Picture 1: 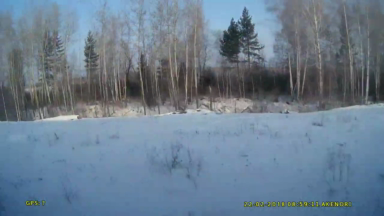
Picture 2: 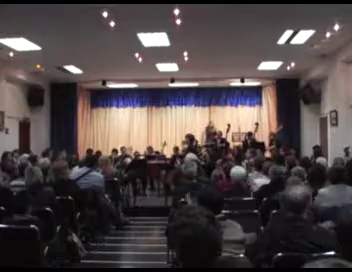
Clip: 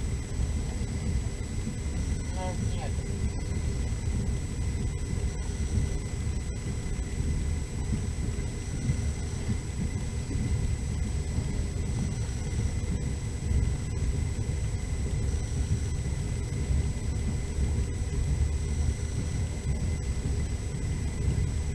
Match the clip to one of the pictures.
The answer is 1